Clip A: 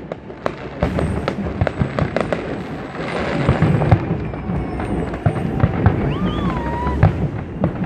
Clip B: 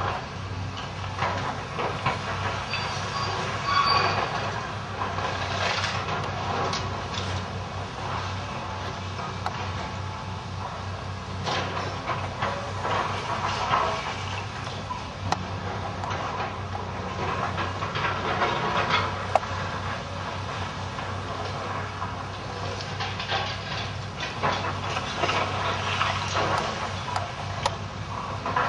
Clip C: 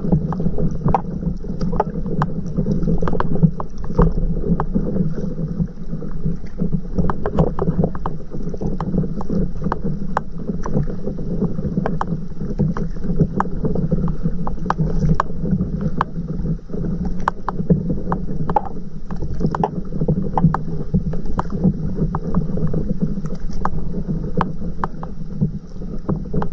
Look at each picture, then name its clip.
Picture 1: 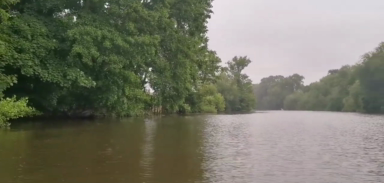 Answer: C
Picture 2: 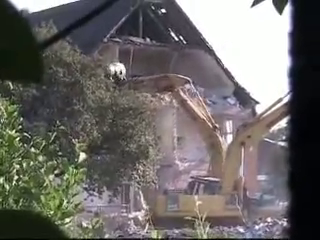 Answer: B